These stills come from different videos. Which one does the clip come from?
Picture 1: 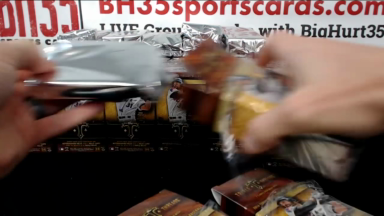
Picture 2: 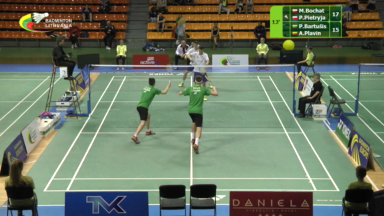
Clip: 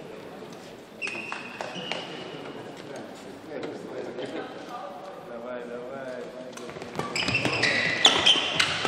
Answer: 2